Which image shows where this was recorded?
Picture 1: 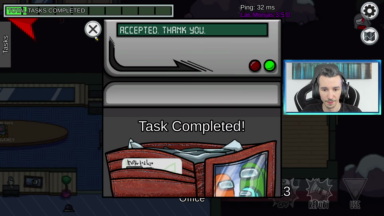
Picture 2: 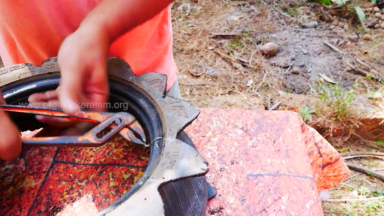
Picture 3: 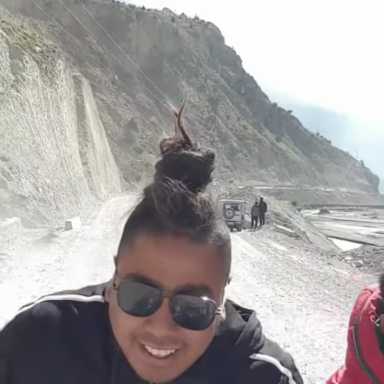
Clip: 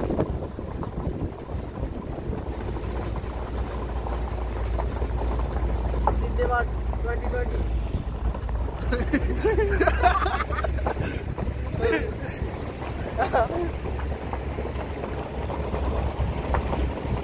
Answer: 3